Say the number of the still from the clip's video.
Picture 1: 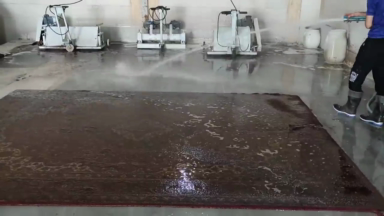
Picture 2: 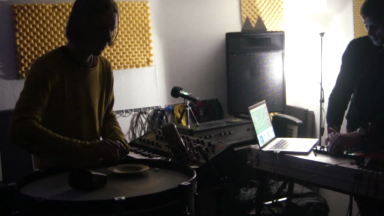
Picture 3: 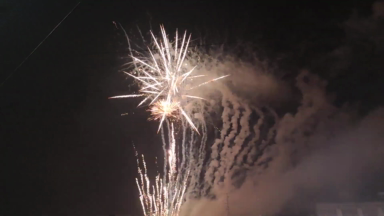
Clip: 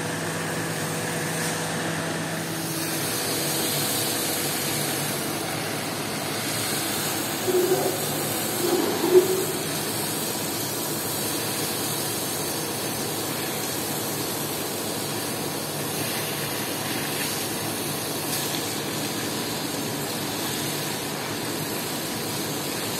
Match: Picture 1